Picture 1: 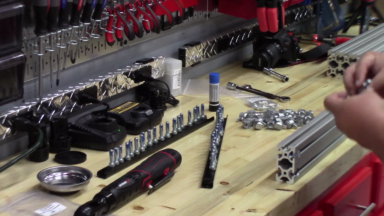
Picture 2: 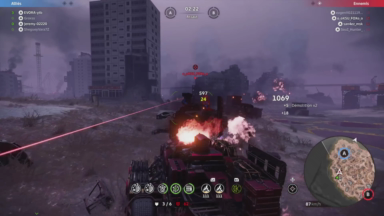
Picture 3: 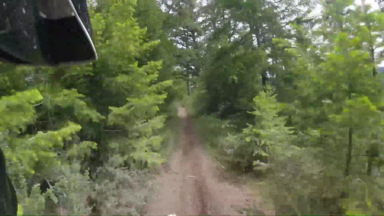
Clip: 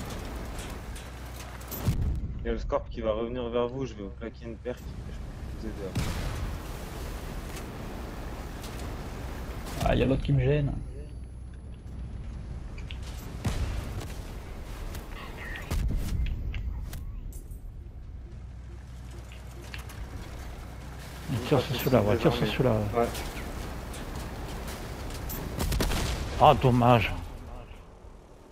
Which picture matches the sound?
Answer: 2